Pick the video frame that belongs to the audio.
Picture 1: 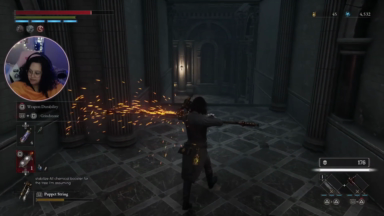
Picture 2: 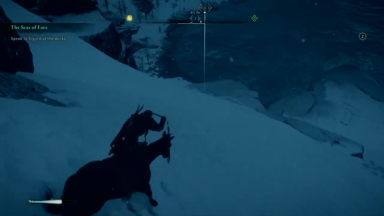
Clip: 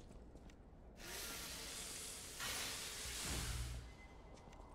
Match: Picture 1